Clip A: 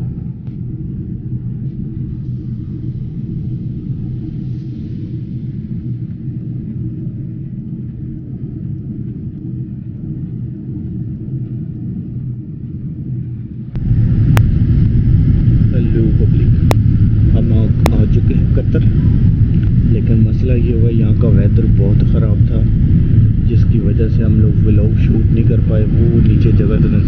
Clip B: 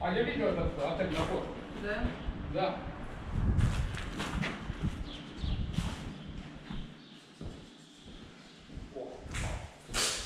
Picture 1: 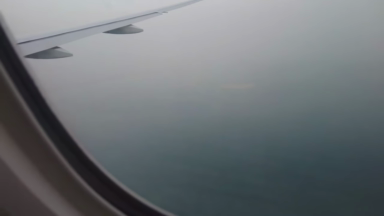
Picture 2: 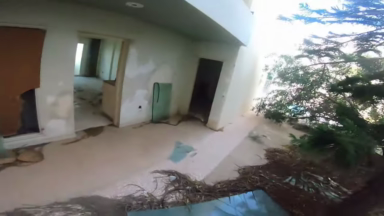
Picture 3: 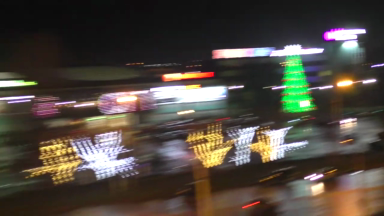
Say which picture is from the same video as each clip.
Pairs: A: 1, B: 2